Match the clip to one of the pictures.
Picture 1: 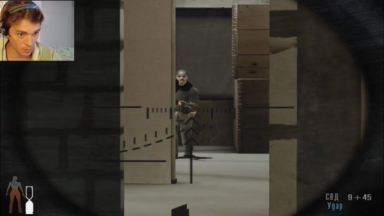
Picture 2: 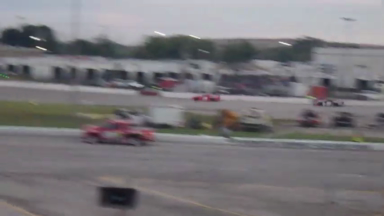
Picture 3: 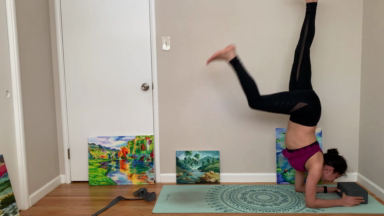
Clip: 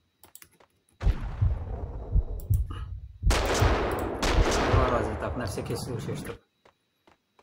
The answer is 1